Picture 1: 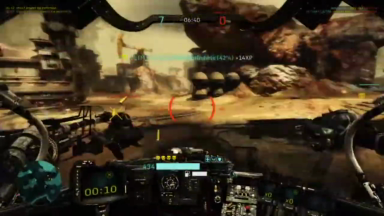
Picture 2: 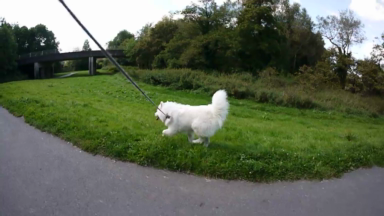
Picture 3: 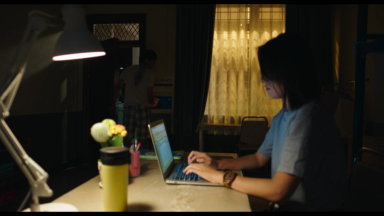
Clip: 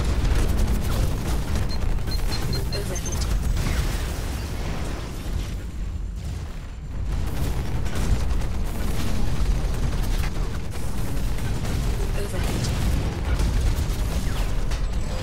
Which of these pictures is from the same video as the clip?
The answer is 1